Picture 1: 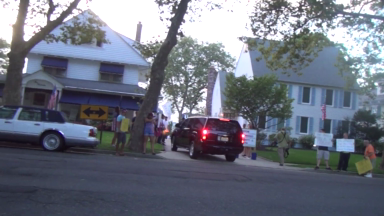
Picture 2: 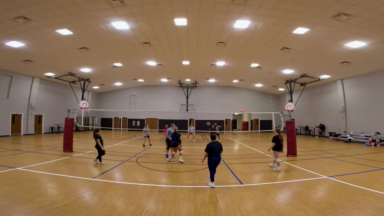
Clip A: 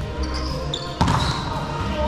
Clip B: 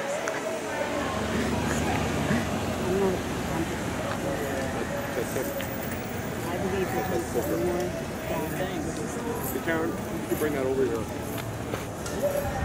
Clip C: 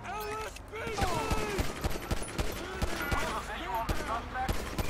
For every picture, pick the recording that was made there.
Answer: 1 B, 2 A